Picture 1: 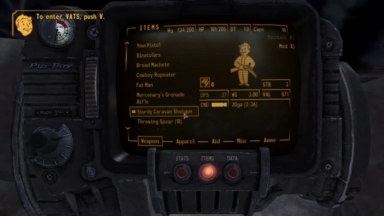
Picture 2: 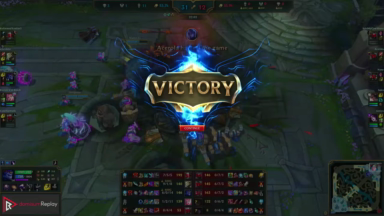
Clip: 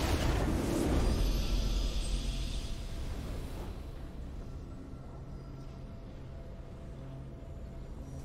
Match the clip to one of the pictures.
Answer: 2